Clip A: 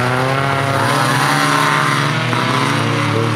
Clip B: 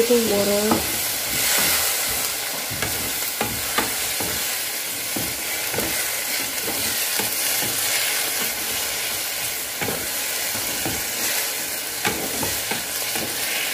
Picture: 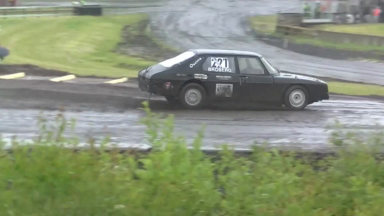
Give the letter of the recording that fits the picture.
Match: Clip A